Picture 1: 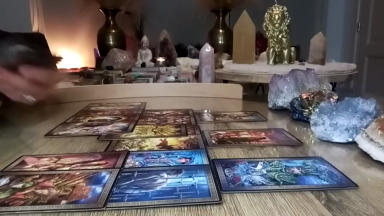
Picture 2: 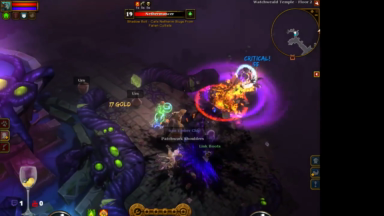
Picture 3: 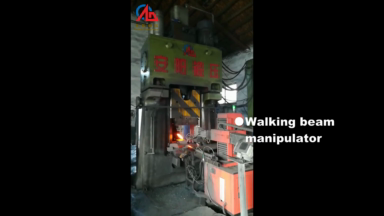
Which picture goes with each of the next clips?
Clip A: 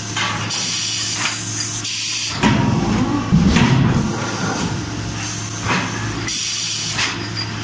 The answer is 3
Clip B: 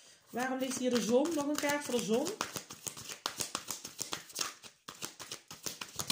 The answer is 1